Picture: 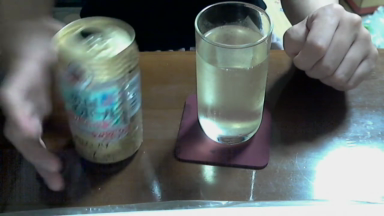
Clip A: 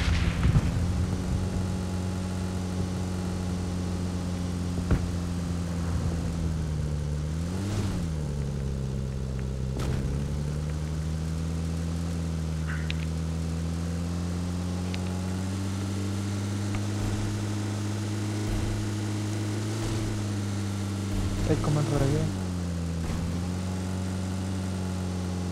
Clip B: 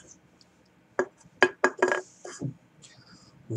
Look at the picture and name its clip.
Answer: B